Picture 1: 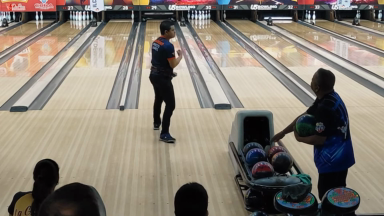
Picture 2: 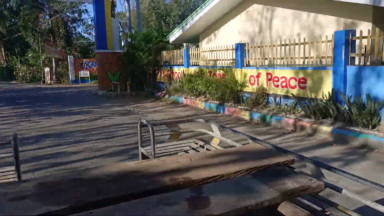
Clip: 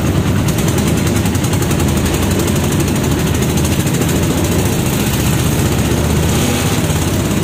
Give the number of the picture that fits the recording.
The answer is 2